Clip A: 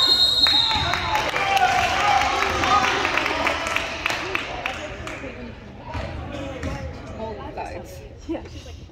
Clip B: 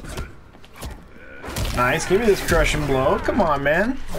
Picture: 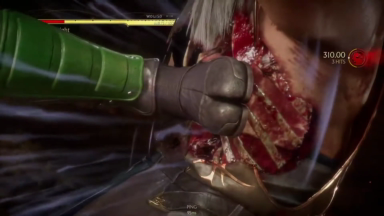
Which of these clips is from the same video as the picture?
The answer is B